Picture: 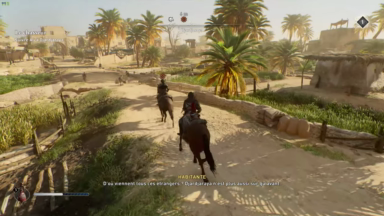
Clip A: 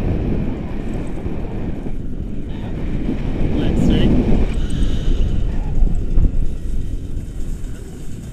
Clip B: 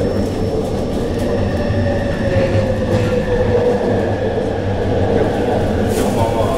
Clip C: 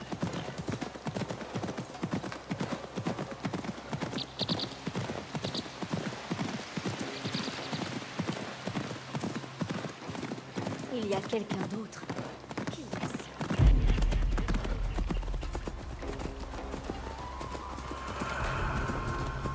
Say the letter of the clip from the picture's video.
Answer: C